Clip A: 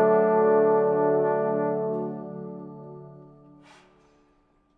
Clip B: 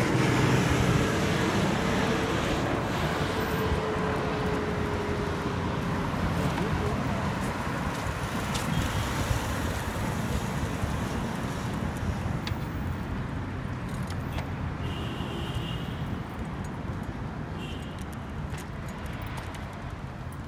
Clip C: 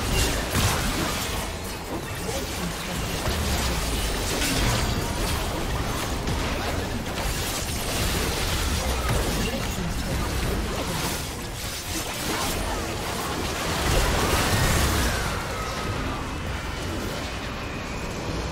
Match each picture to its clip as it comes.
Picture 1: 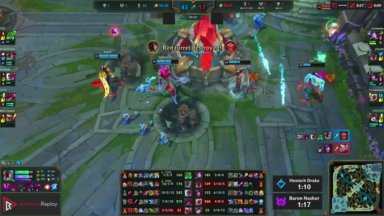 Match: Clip C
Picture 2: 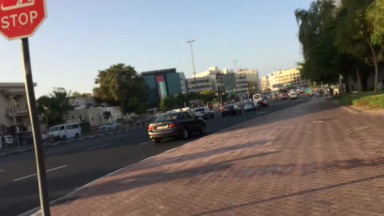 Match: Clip B